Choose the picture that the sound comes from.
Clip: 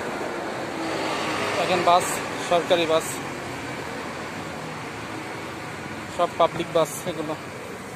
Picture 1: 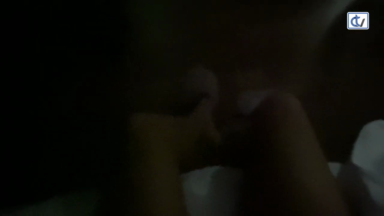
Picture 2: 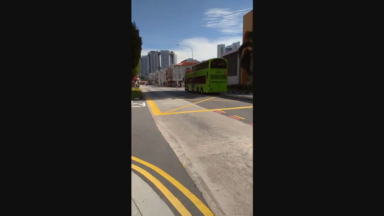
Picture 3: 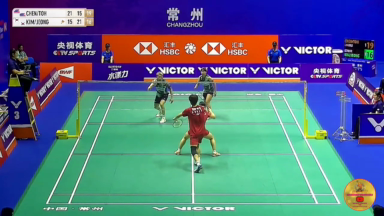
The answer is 2